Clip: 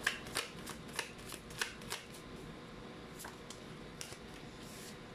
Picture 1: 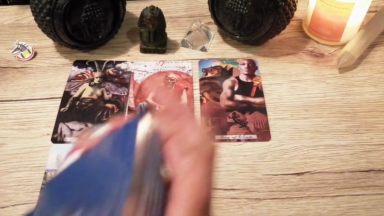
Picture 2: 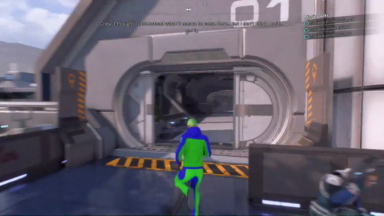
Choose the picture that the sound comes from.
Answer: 1